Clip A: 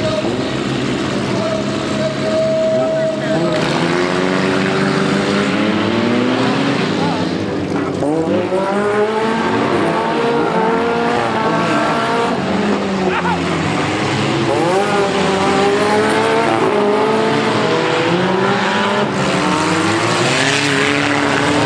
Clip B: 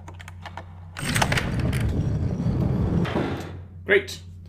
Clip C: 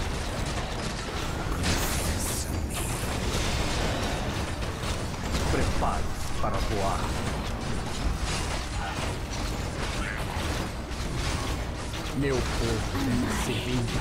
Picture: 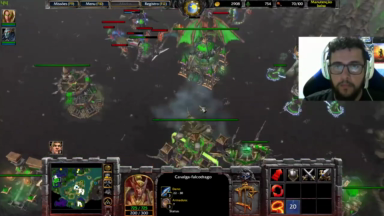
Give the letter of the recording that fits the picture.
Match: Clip C